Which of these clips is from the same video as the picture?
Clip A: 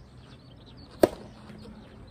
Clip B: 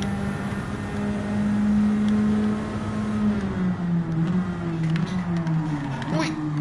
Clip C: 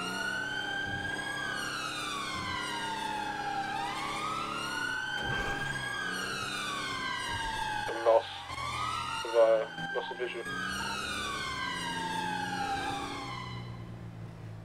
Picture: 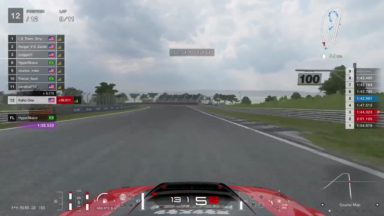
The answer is B